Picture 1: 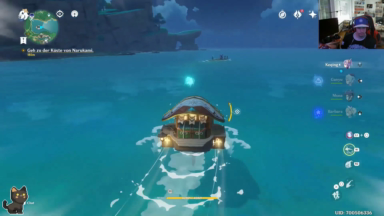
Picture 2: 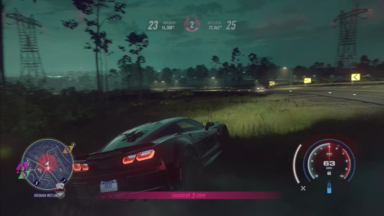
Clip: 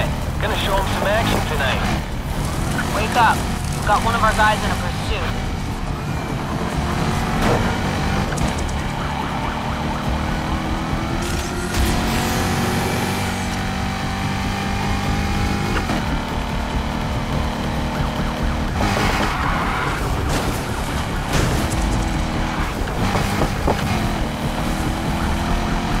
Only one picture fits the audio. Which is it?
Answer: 2